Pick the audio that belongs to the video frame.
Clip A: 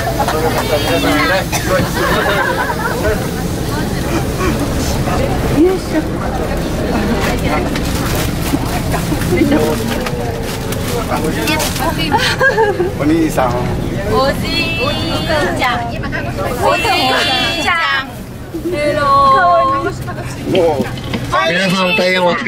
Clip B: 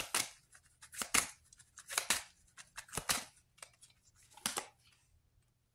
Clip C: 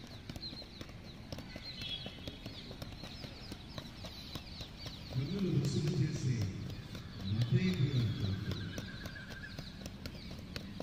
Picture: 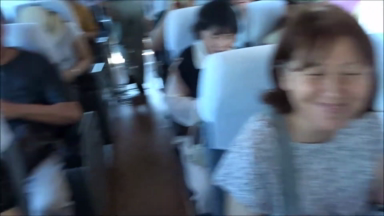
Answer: A